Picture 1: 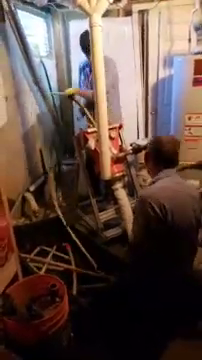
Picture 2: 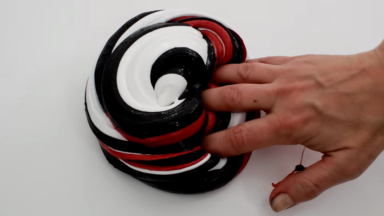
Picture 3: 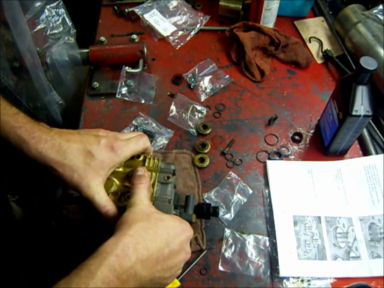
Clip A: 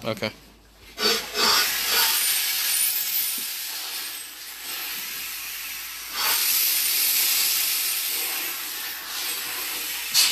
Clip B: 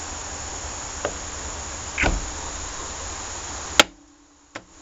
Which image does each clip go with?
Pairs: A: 1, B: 3